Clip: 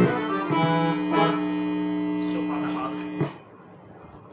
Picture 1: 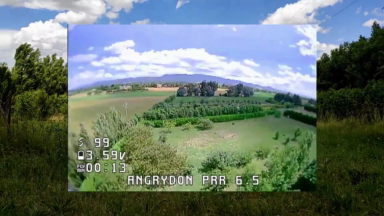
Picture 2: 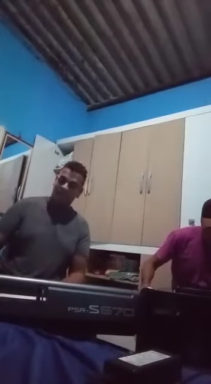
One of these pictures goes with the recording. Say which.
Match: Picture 2